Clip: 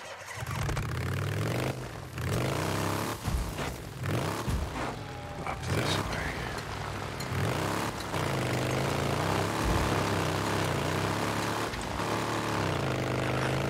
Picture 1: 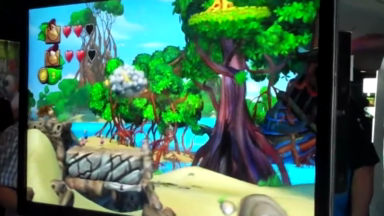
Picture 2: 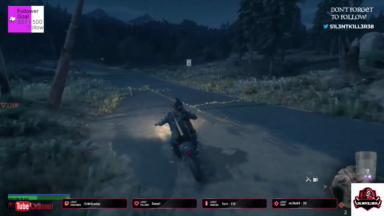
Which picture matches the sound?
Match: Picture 2